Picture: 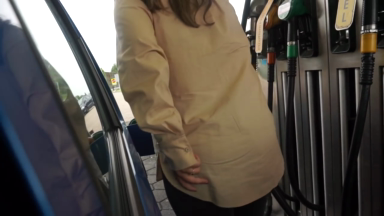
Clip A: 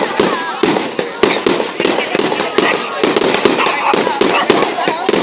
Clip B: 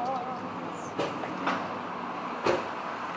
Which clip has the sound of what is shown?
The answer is B